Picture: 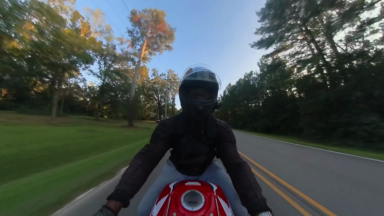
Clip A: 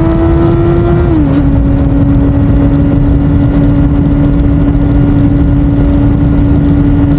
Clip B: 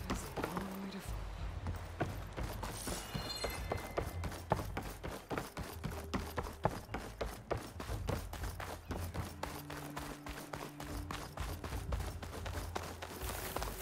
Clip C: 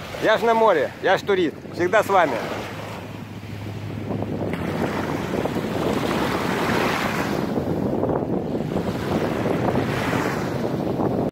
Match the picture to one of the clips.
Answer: A